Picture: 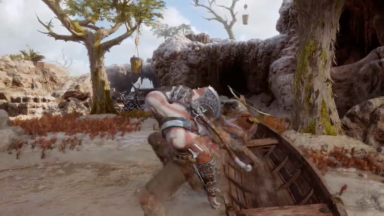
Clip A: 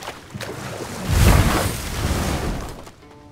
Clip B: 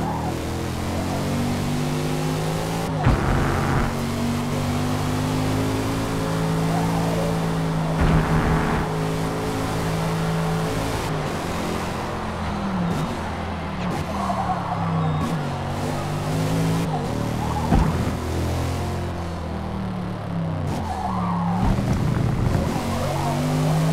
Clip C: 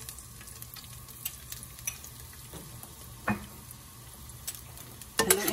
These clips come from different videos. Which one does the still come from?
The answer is A